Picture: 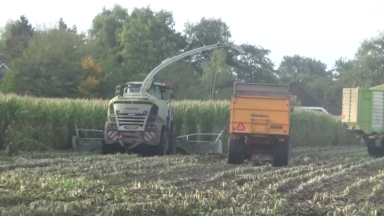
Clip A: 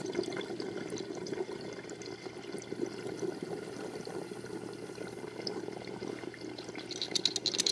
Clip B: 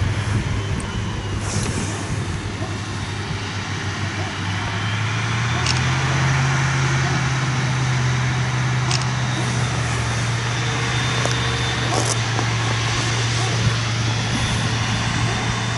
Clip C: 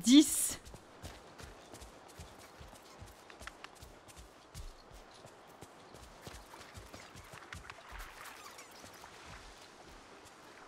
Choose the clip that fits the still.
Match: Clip B